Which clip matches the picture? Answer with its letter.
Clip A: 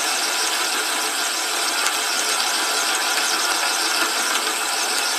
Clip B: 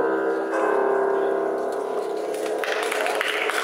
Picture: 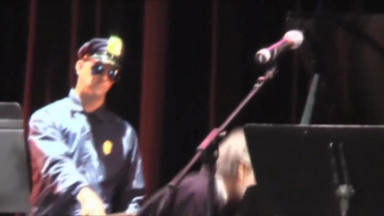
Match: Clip B